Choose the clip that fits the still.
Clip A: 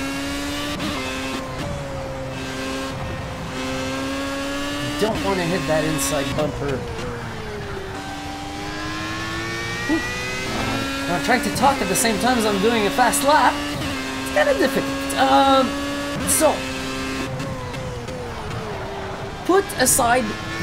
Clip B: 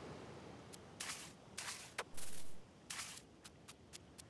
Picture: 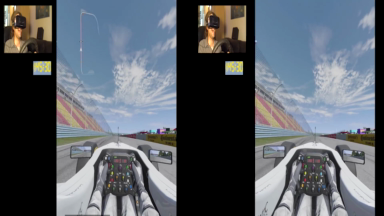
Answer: A